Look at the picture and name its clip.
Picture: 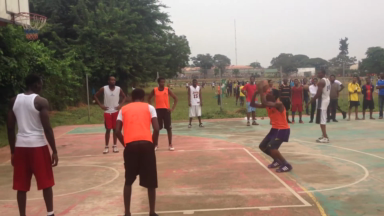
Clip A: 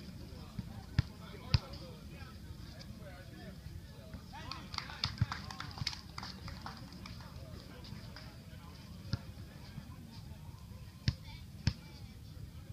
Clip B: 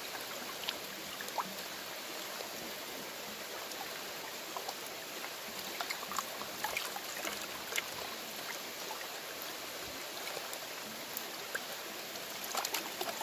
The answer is A